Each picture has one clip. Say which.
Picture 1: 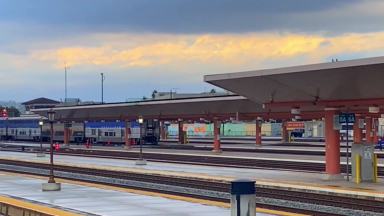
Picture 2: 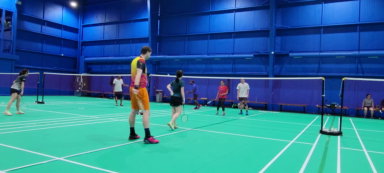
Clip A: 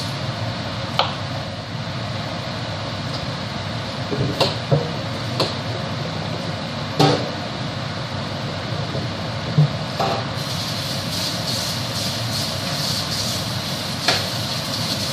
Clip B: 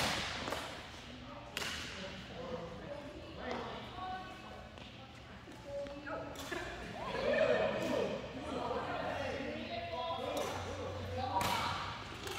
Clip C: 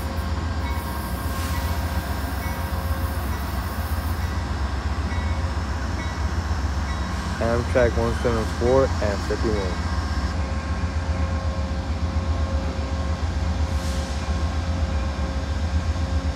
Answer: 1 C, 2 B